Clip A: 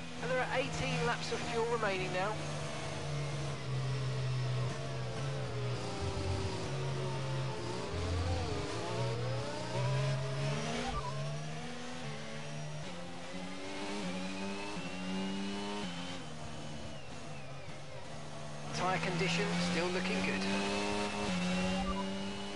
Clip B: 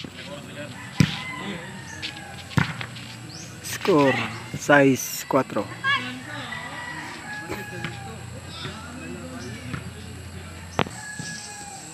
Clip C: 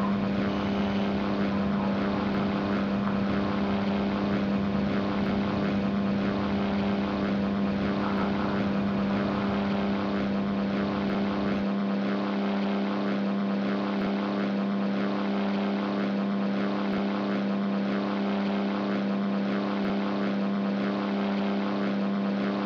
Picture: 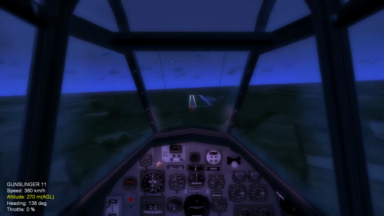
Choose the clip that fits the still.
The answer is C